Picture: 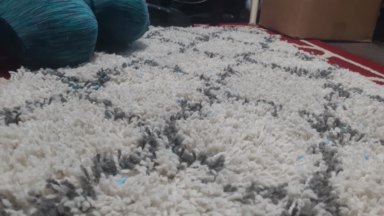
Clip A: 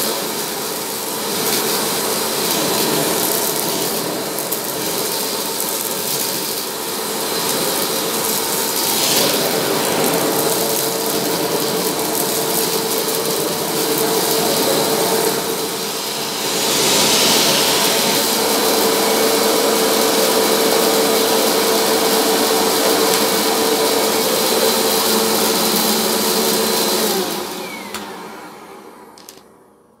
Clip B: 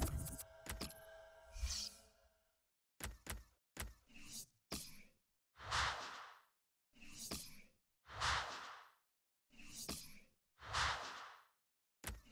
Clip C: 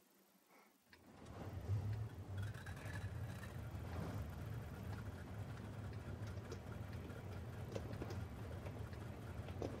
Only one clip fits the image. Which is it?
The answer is A